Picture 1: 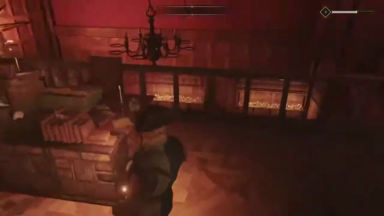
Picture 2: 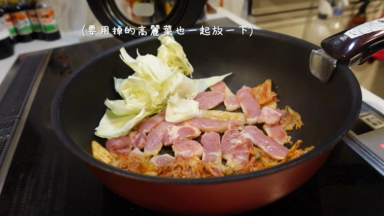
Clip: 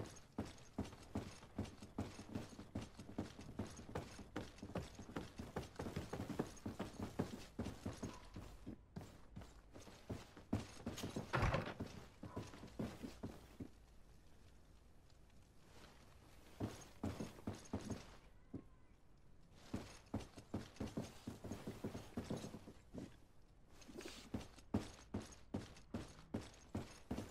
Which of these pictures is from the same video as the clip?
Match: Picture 1